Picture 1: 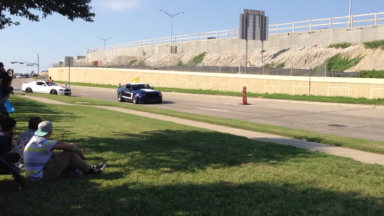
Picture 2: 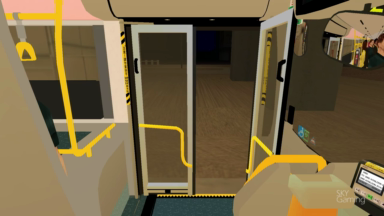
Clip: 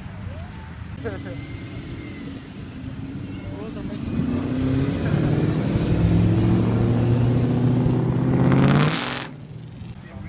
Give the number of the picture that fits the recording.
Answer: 1